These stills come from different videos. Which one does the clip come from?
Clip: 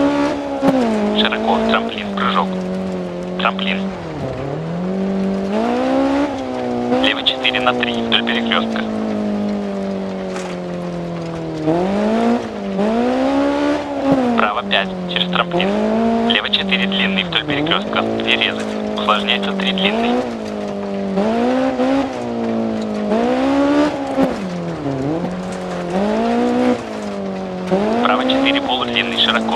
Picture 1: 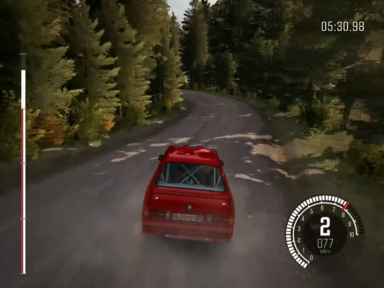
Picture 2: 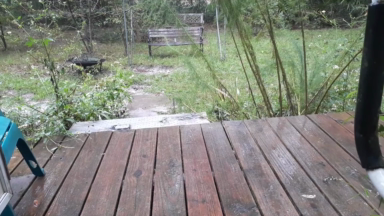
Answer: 1